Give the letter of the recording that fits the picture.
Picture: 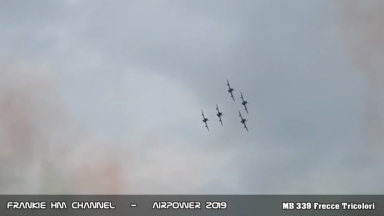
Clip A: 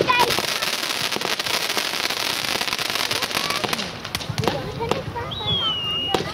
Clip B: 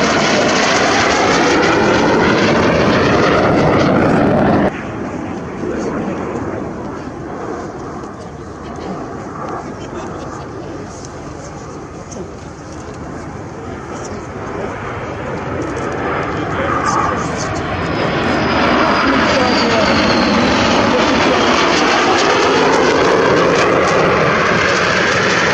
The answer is B